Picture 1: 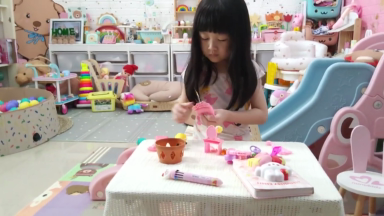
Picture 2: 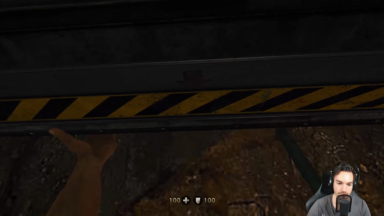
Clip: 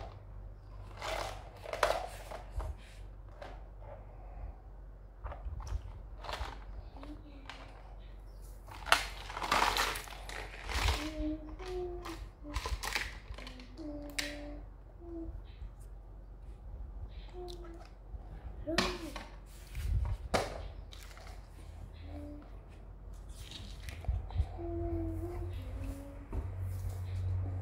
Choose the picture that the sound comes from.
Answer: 1